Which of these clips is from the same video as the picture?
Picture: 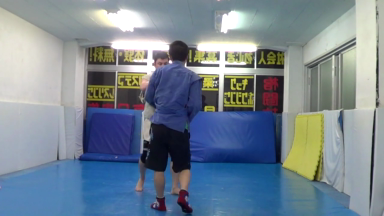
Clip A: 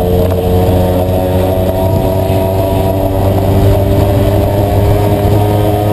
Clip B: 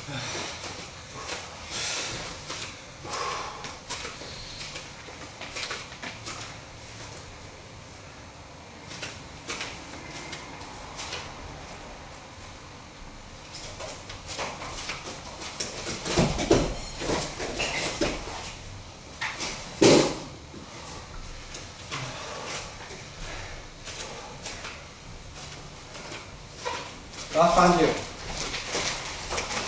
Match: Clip B